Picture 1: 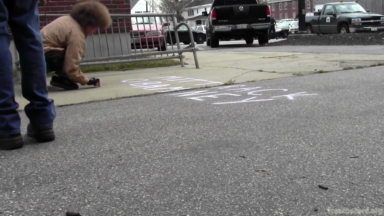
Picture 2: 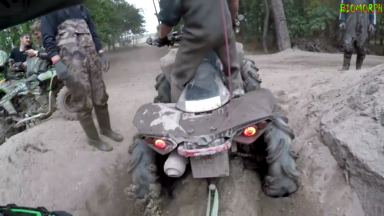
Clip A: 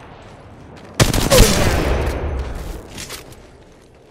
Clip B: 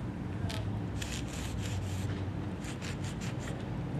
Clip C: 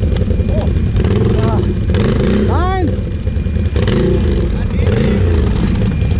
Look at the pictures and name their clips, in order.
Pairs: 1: B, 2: C